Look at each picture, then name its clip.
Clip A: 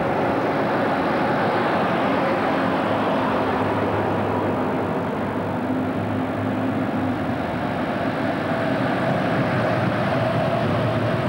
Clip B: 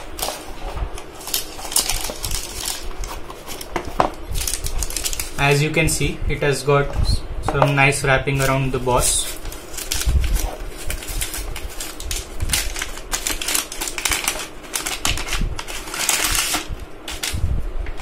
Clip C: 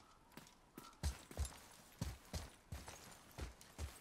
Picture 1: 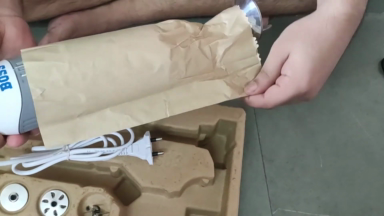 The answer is B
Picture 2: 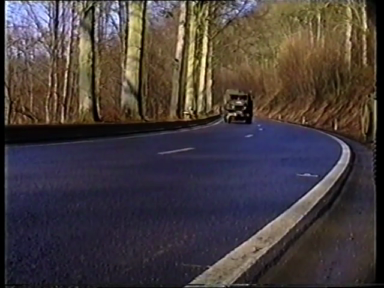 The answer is A